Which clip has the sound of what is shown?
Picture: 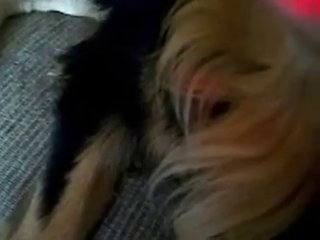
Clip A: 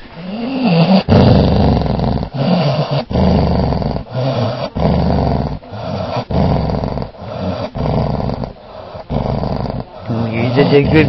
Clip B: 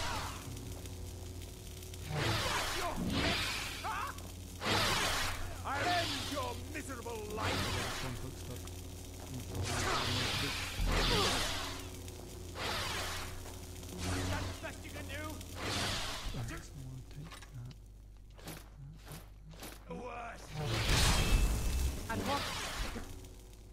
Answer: A